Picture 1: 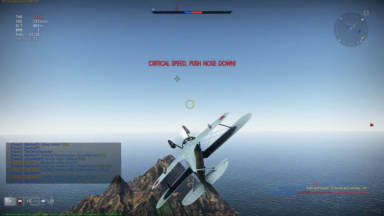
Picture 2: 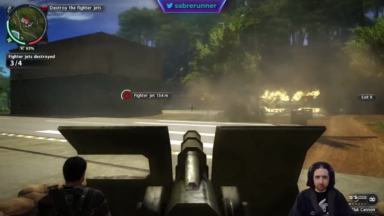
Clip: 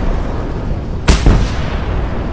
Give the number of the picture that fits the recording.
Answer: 2